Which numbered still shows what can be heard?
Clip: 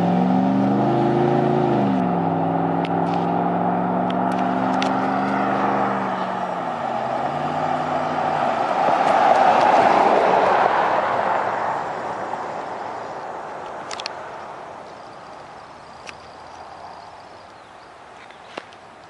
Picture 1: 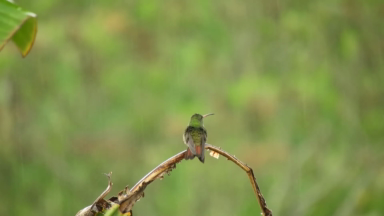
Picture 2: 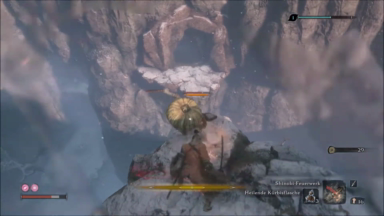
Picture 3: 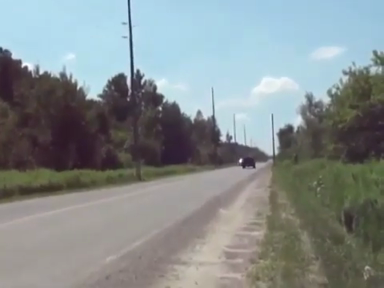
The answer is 3